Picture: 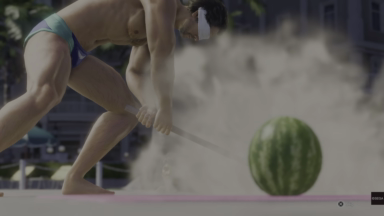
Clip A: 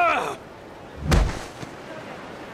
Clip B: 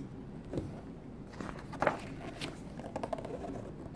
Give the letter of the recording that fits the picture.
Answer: A